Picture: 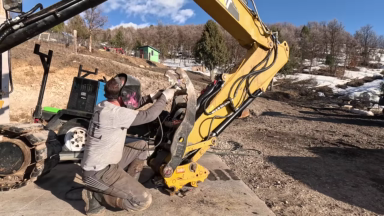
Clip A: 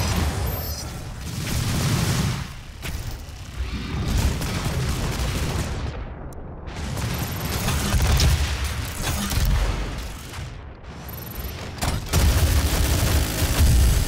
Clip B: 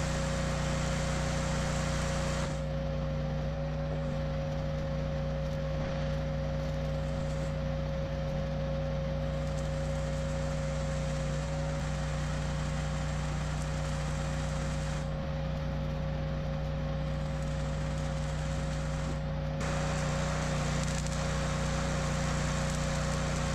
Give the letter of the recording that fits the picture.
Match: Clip B